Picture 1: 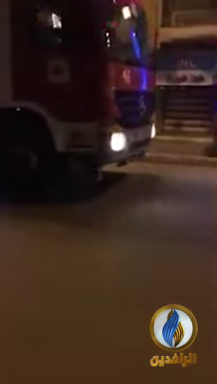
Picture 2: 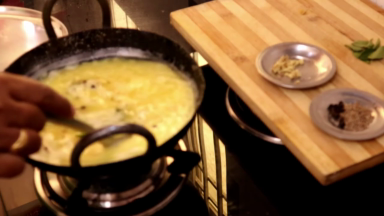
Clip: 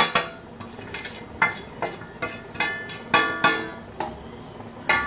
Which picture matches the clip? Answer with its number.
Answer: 2